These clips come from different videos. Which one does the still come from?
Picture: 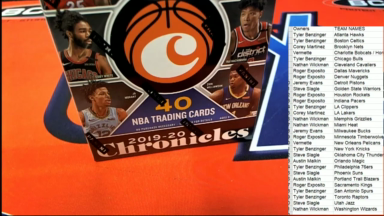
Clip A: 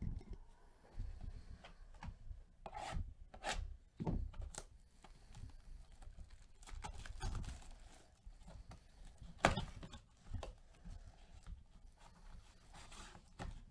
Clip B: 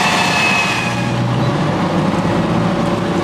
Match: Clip A